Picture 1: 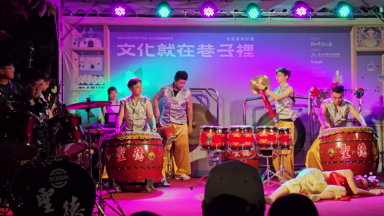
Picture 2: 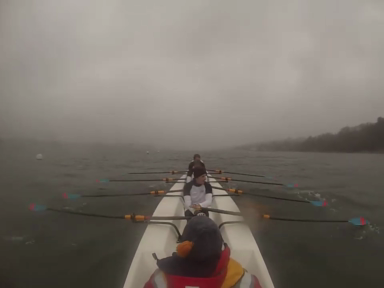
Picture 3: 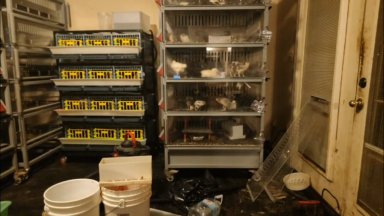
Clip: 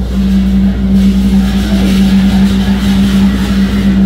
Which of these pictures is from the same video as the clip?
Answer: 1